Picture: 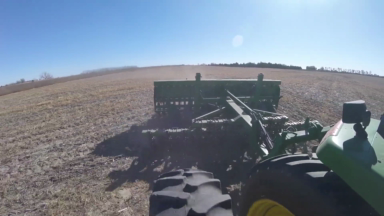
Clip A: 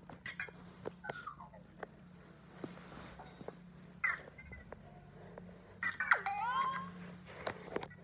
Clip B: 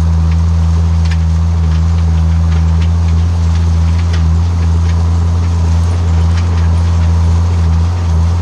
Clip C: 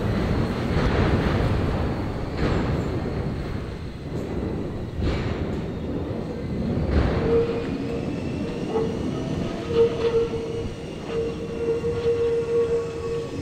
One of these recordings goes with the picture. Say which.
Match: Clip B